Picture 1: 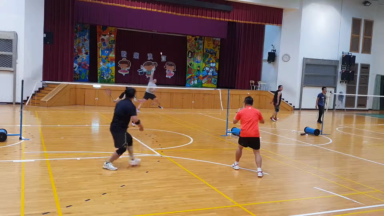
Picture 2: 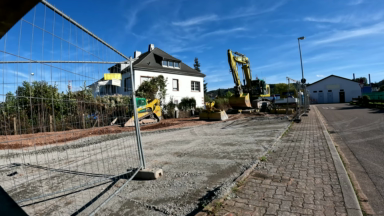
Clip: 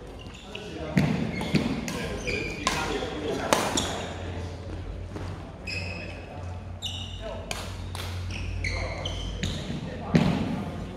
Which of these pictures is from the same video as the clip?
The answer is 1